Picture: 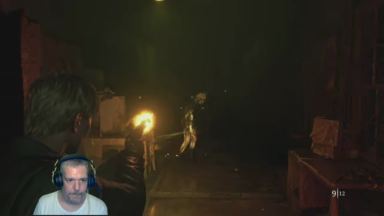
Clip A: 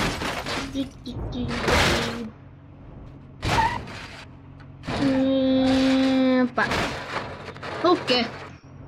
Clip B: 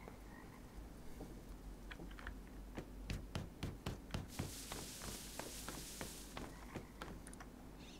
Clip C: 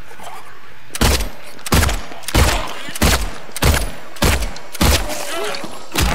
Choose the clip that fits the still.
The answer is C